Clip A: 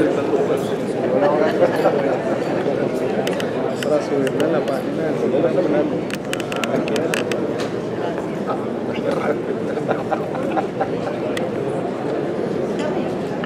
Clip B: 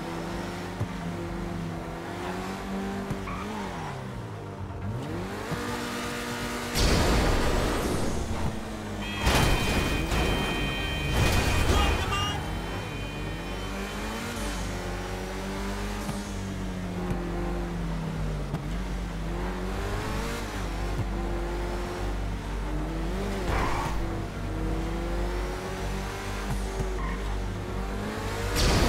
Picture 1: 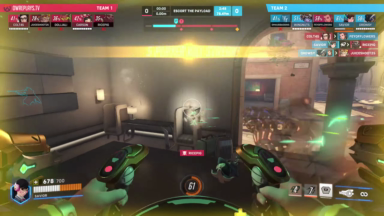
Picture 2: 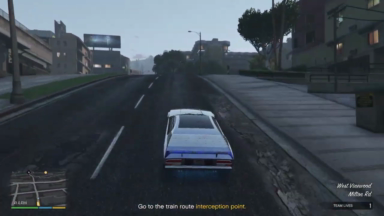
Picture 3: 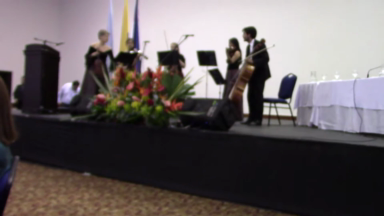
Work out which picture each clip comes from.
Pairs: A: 3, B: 2